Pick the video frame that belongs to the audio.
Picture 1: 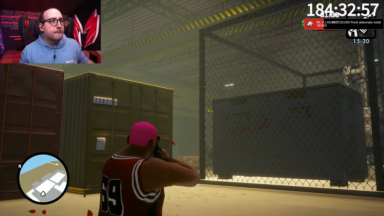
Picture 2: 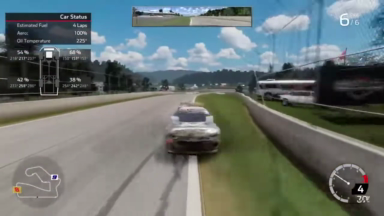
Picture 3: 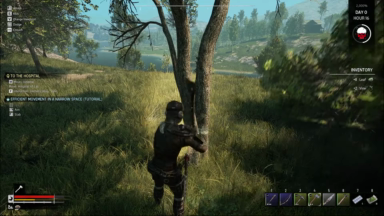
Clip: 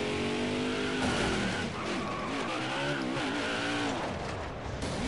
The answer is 2